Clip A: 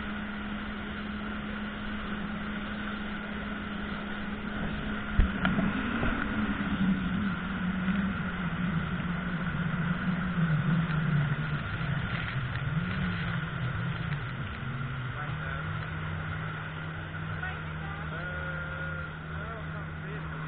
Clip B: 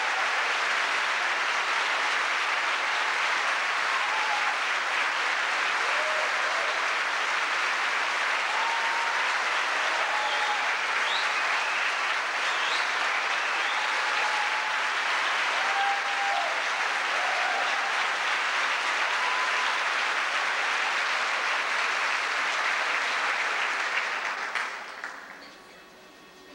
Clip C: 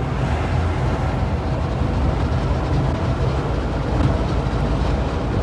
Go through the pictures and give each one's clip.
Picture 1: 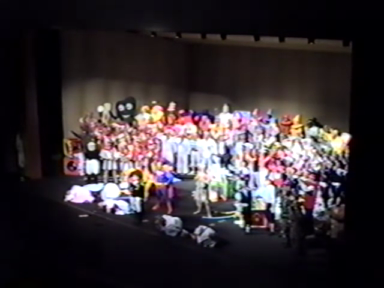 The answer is B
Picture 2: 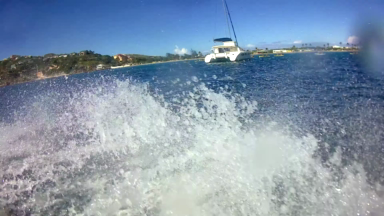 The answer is A